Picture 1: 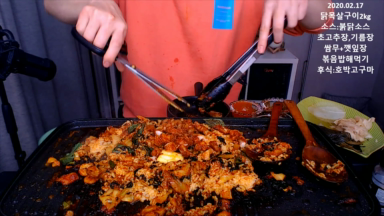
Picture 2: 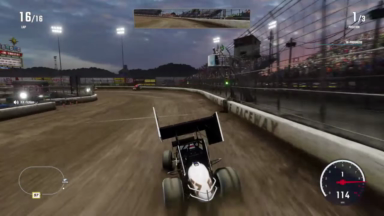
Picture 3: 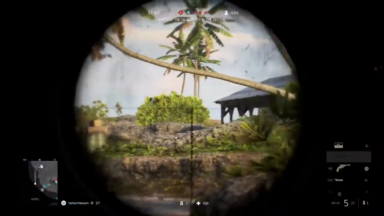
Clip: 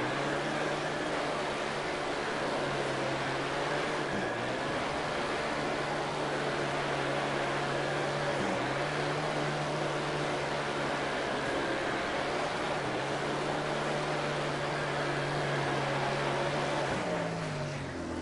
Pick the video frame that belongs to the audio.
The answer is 2